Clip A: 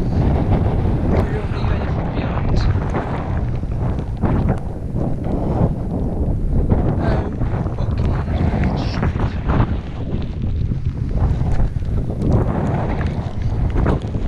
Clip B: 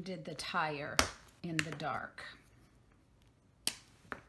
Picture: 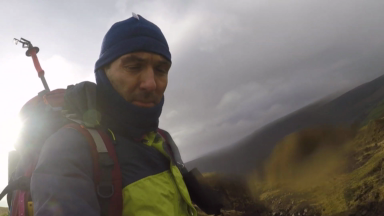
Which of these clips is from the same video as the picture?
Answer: A